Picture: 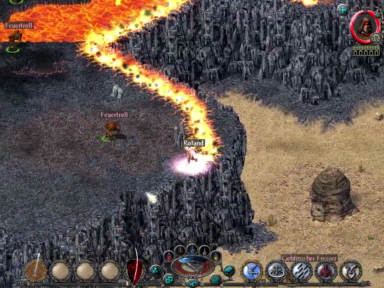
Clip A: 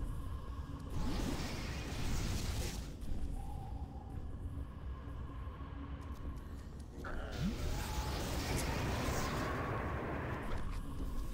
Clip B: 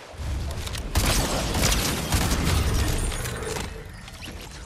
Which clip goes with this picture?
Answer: A